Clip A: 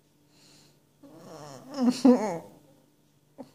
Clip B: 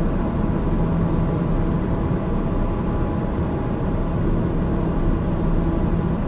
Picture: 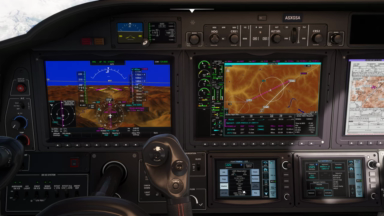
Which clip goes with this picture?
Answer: B